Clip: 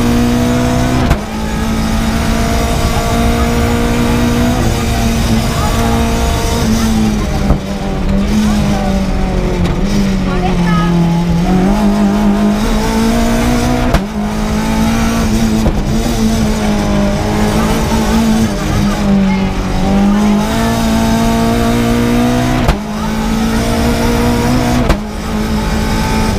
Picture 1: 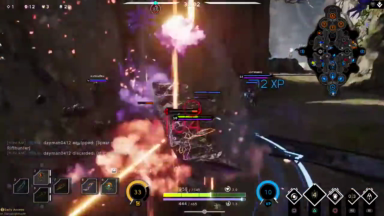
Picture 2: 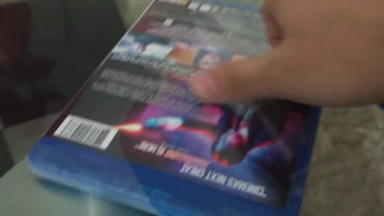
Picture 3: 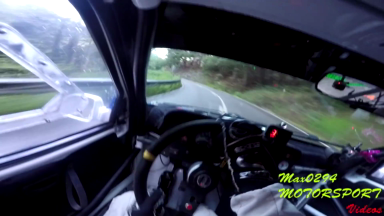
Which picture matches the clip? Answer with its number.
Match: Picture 3